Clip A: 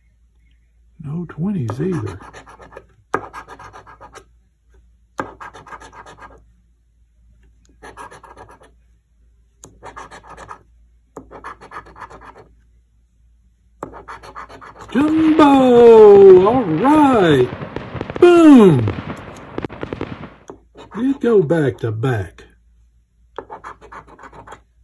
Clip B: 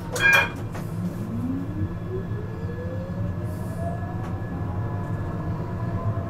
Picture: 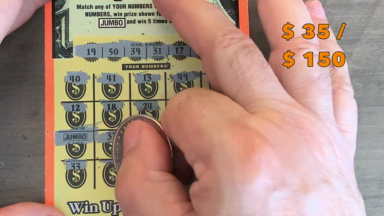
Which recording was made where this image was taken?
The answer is A